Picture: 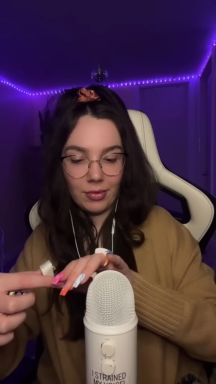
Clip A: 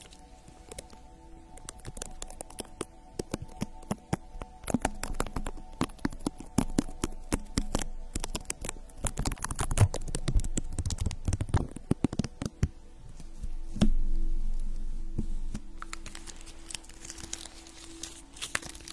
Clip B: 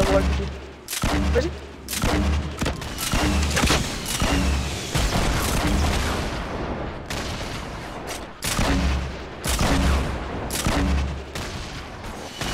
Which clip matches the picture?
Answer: A